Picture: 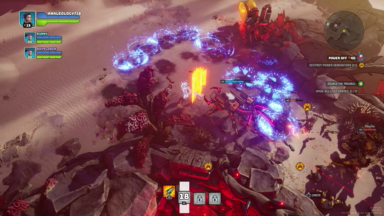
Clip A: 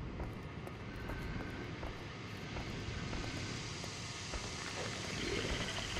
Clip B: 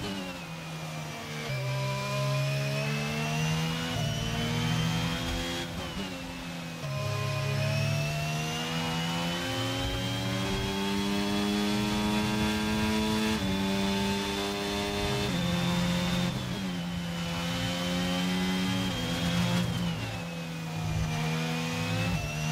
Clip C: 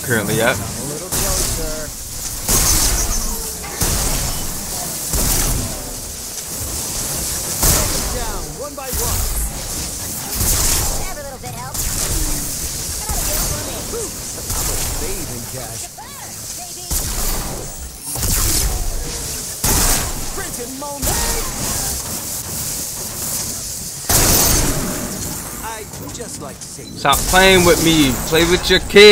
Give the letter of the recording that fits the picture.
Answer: C